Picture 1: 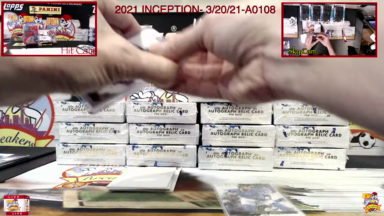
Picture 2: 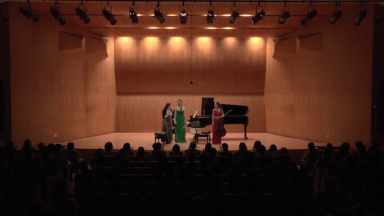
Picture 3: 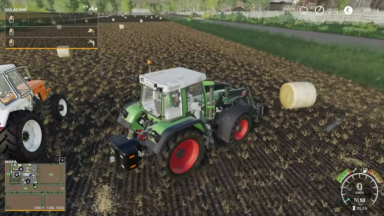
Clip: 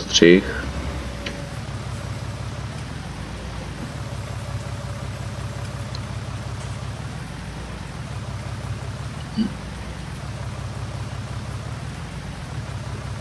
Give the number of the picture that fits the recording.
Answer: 3